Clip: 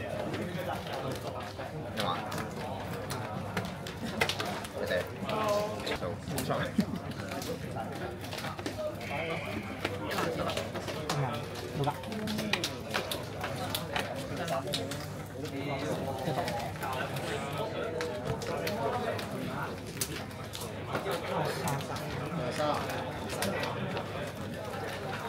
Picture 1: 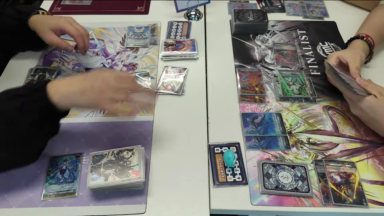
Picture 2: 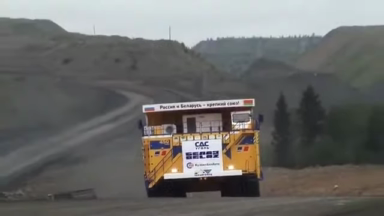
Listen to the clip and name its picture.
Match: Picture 1